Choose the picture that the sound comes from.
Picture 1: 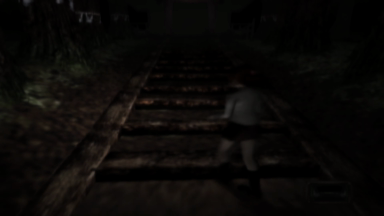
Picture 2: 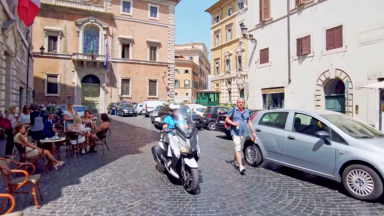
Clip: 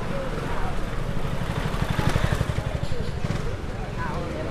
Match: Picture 2